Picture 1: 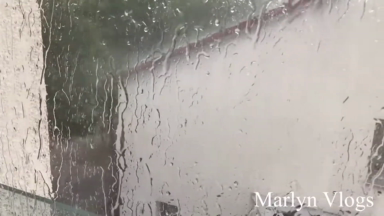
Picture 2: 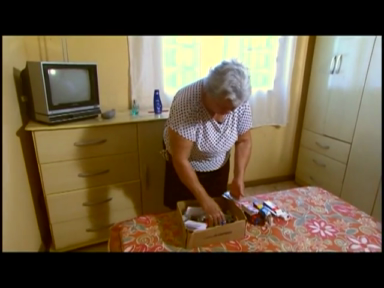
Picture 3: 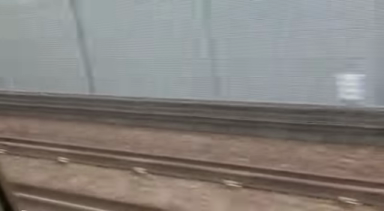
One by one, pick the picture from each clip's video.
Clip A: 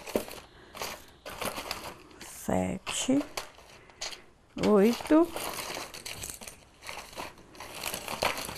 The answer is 2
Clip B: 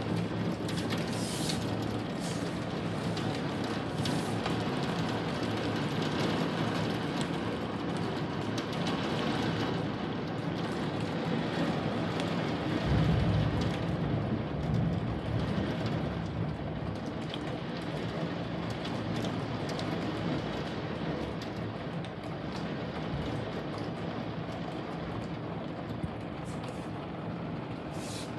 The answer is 1